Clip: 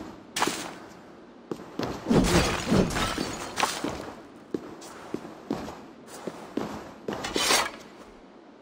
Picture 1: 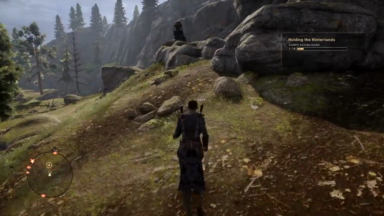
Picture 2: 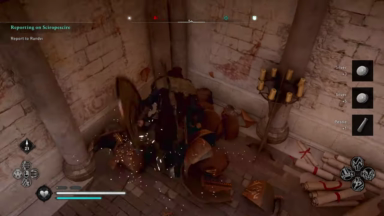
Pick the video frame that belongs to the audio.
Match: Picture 2